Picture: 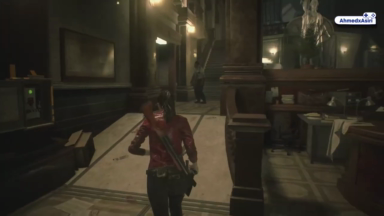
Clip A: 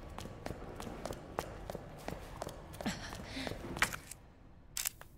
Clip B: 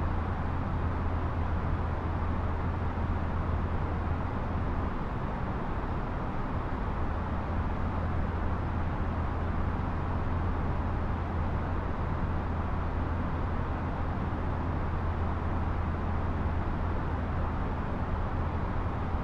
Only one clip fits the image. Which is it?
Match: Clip A